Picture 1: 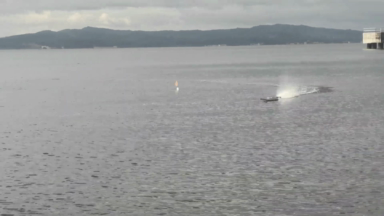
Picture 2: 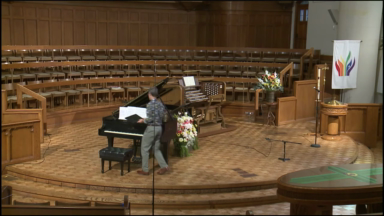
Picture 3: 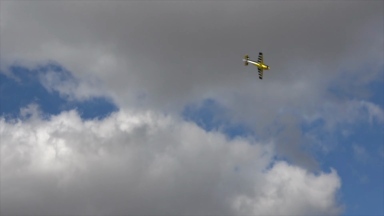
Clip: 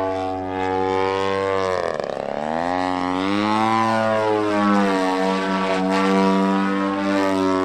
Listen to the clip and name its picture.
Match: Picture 3